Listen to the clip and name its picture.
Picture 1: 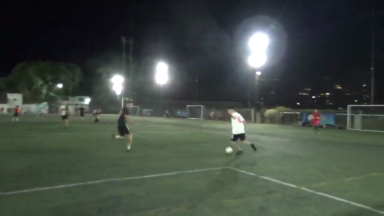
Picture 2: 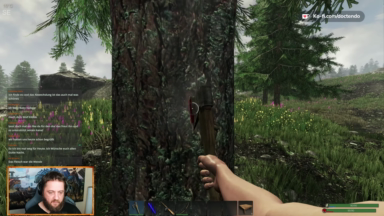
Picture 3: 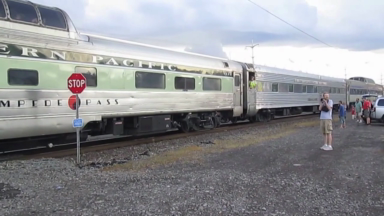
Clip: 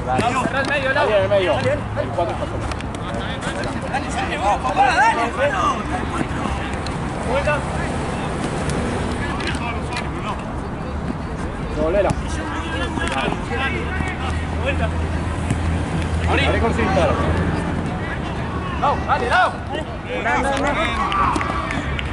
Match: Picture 1